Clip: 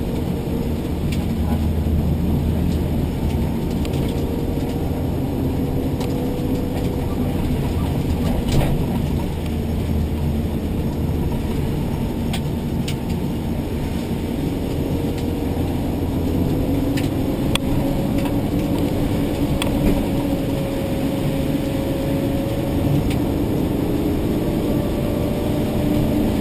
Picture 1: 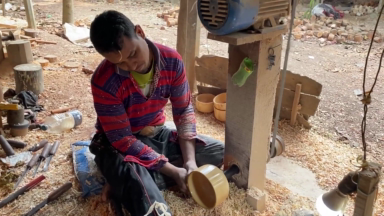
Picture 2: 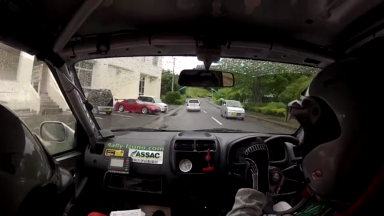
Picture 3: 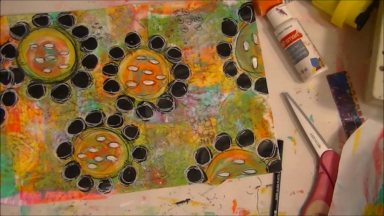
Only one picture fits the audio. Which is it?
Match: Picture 2